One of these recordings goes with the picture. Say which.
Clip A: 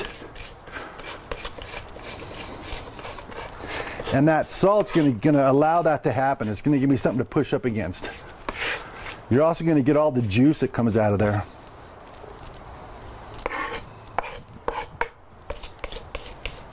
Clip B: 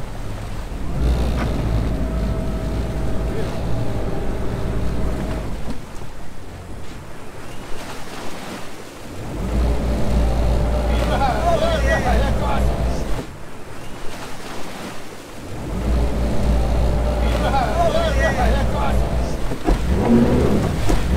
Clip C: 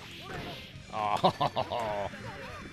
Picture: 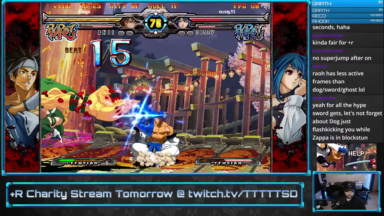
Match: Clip C